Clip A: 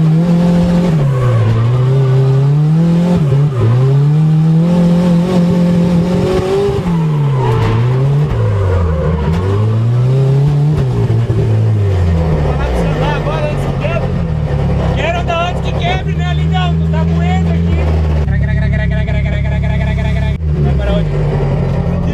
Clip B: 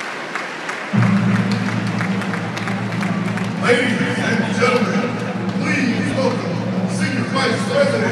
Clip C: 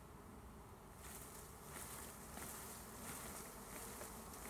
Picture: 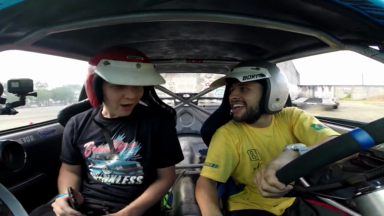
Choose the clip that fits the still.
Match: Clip A